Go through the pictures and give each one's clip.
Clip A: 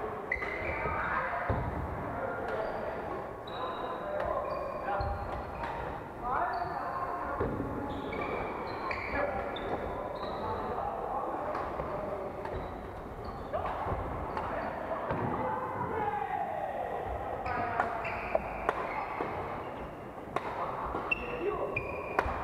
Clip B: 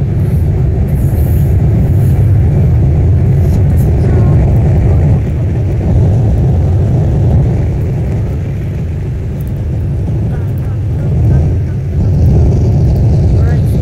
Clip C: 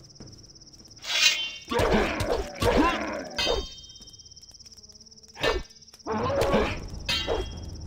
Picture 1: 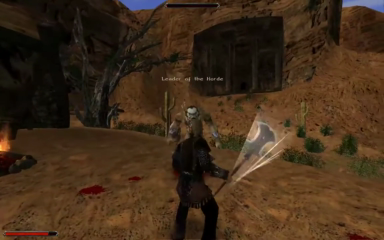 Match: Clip C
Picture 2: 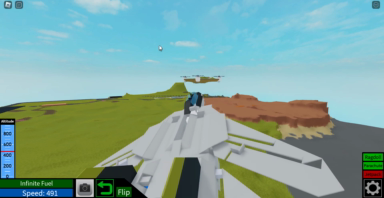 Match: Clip B